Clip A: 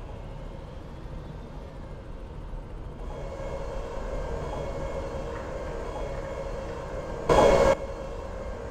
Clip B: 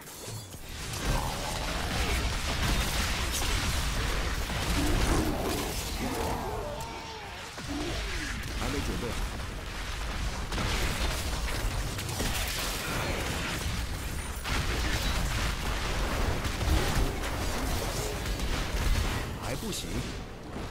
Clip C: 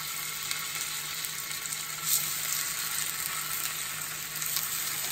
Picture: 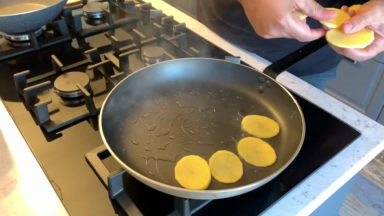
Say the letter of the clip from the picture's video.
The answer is C